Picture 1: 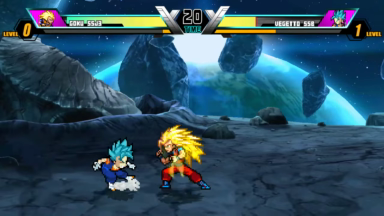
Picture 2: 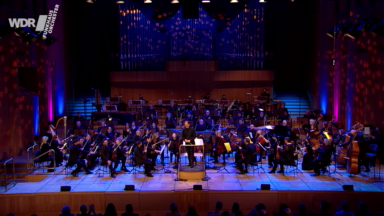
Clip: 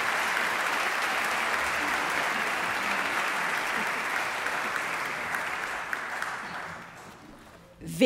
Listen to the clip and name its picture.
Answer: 2